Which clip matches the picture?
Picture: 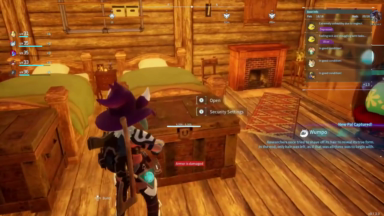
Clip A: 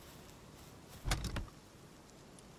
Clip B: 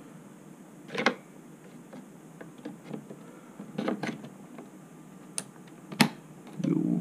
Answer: A